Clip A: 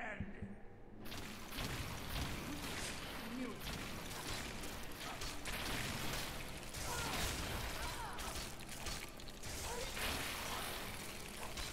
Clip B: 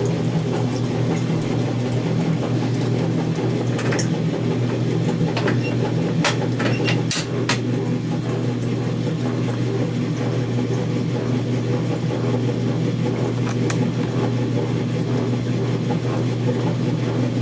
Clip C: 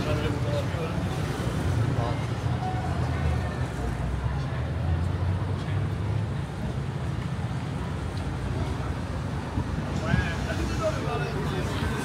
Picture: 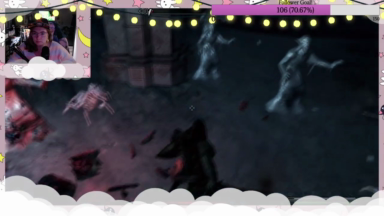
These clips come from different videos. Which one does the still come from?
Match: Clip A